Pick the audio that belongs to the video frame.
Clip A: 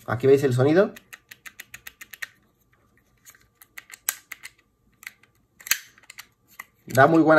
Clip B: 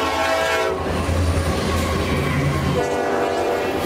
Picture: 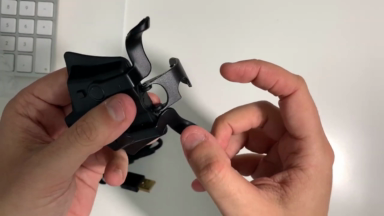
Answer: A